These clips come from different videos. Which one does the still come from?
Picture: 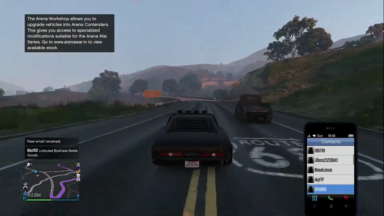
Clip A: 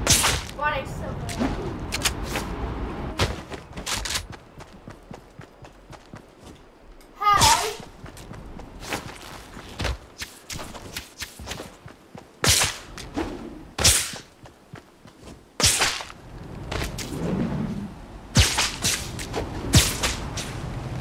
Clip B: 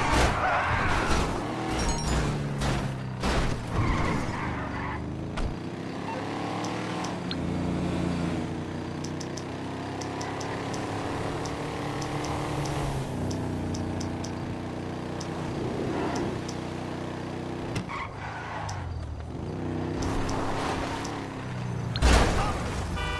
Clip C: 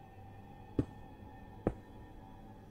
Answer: B